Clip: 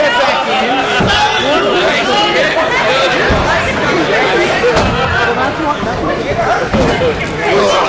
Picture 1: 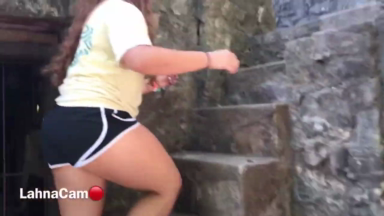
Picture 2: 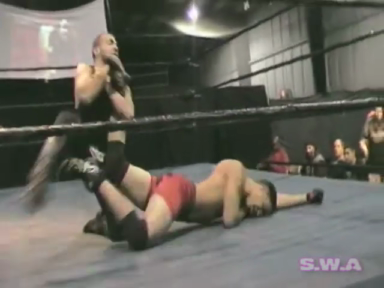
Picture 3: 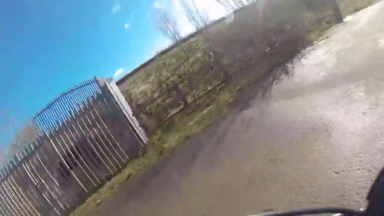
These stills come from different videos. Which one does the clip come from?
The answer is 2